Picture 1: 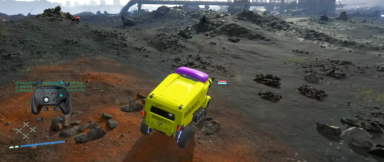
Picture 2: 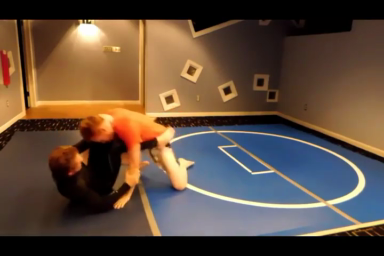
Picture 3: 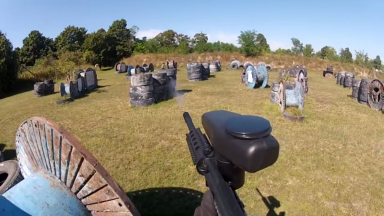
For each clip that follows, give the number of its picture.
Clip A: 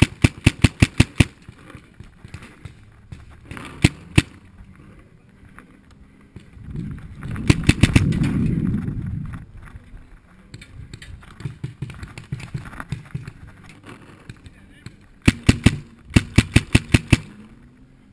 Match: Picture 3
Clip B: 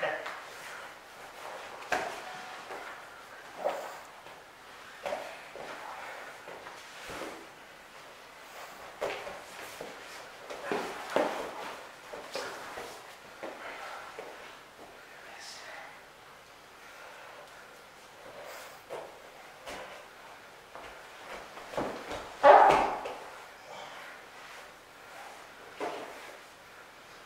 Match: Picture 2